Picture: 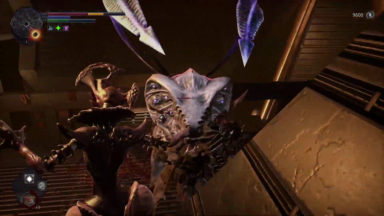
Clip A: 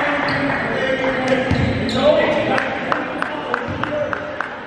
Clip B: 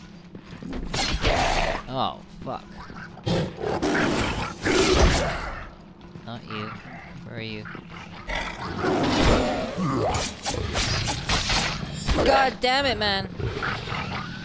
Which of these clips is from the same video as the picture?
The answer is B